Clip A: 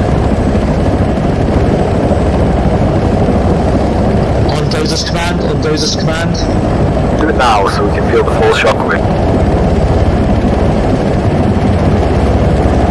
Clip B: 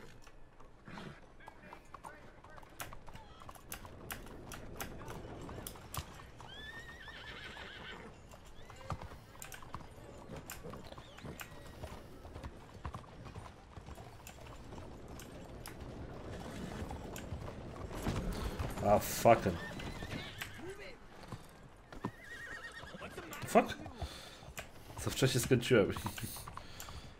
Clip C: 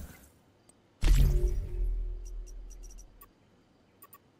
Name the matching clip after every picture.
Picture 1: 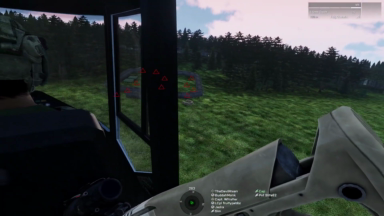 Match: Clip A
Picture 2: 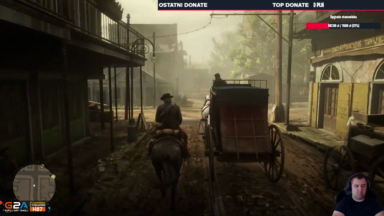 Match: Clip B